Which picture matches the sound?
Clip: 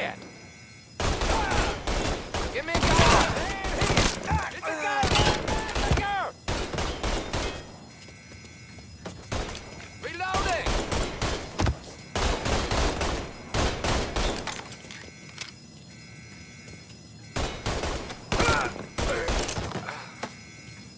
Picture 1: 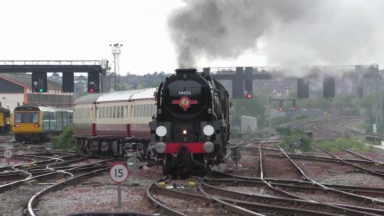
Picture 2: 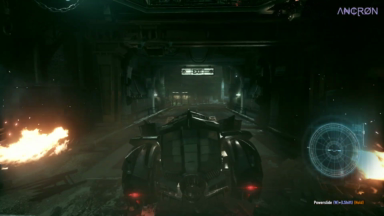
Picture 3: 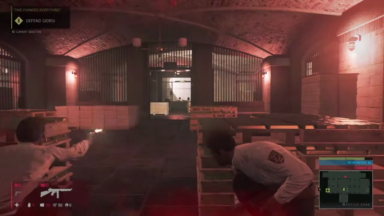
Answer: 3